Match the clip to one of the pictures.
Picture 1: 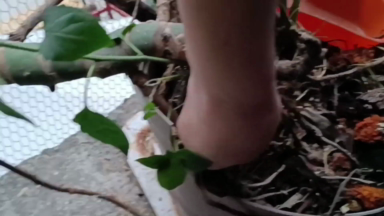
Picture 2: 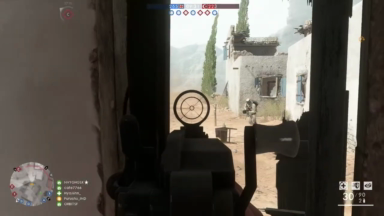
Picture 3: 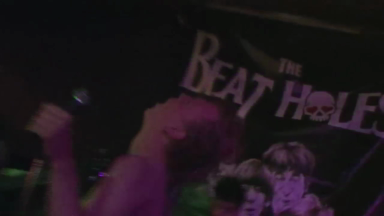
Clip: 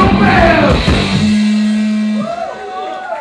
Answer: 3